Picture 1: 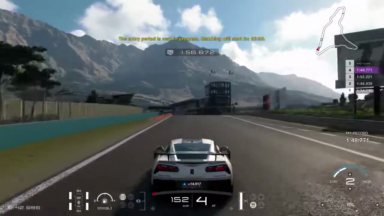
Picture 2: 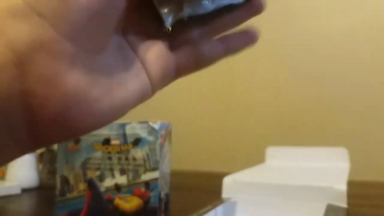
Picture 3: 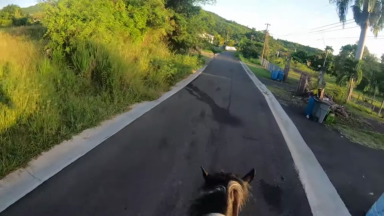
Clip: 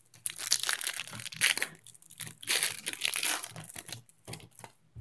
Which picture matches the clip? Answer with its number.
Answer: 2